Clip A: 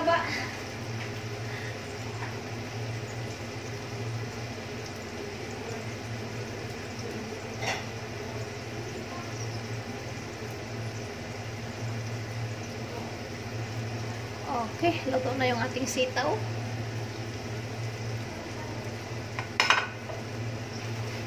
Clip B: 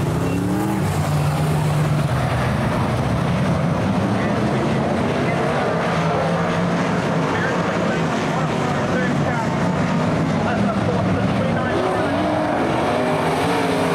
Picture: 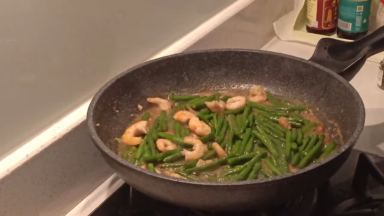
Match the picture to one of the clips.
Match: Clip A